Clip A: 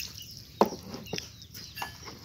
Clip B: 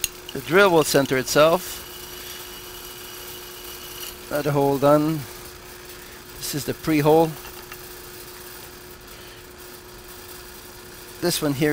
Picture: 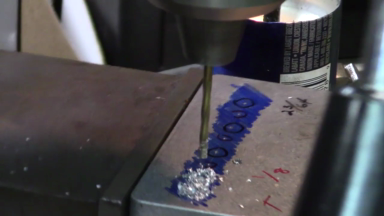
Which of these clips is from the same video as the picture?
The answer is B